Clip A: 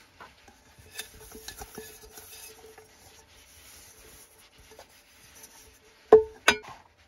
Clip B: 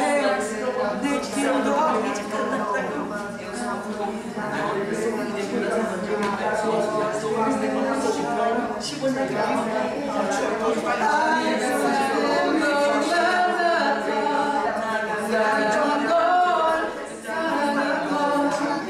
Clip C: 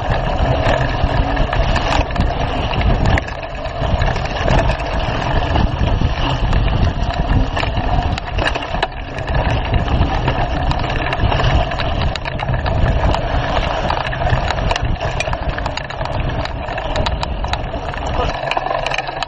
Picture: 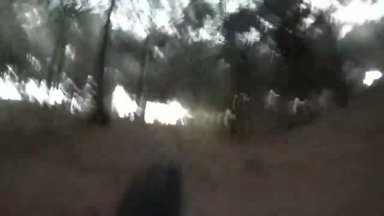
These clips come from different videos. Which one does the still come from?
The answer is C